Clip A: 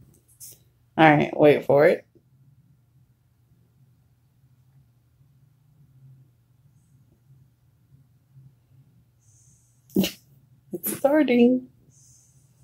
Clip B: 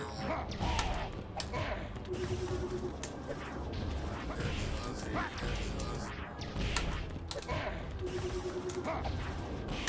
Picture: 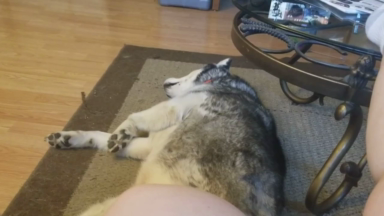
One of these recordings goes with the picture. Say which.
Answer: A